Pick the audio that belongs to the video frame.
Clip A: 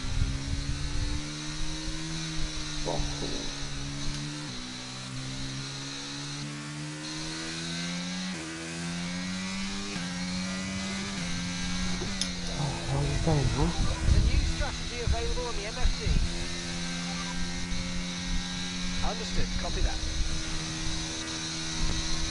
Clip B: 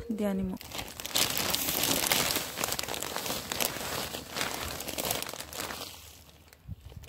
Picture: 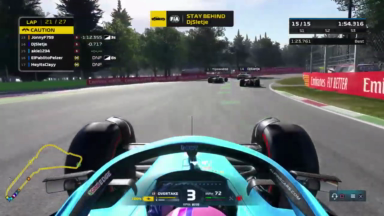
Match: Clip A